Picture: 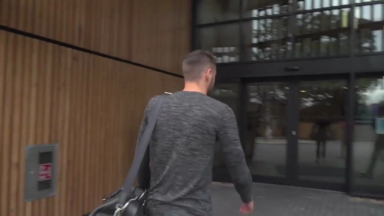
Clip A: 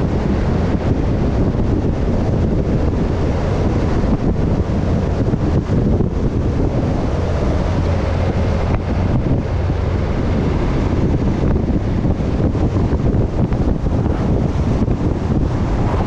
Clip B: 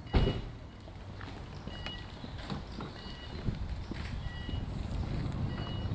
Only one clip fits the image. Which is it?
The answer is B